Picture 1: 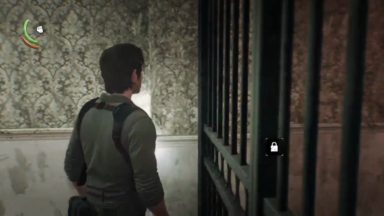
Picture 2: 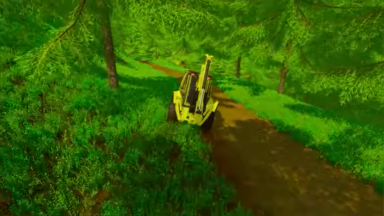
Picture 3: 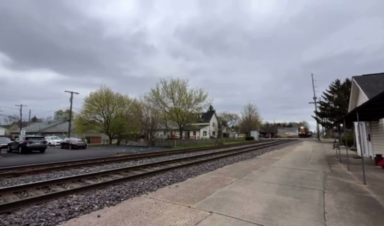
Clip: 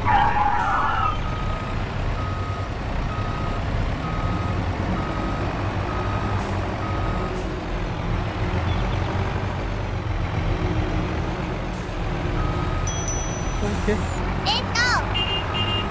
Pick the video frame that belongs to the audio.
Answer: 2